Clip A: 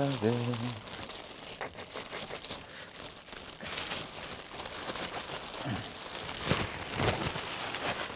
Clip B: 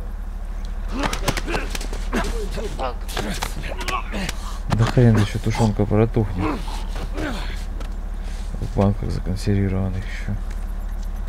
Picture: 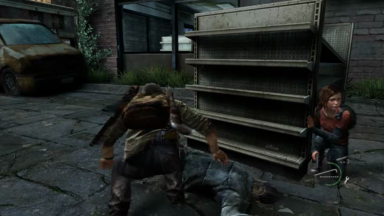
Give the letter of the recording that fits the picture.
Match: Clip B